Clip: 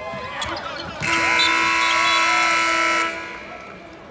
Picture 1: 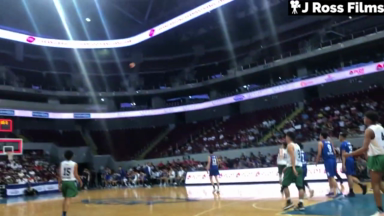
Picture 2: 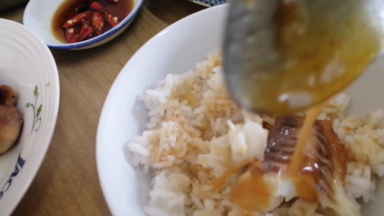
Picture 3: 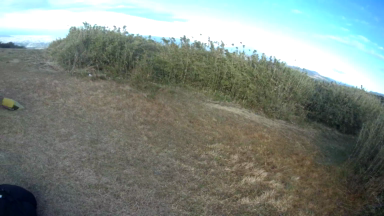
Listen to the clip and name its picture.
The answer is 1